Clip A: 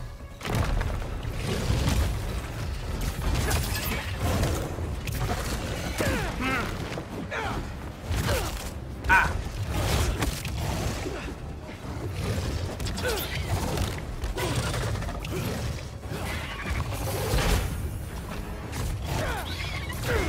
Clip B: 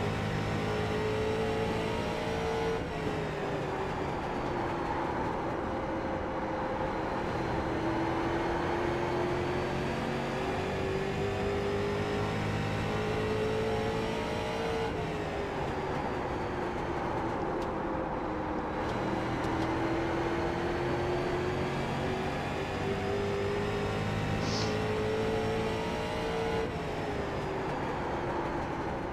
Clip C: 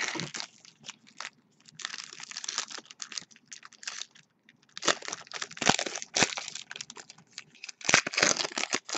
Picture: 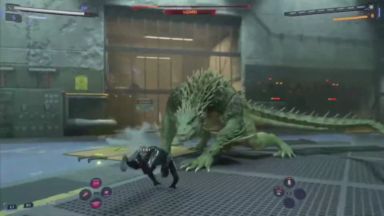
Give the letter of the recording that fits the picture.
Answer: A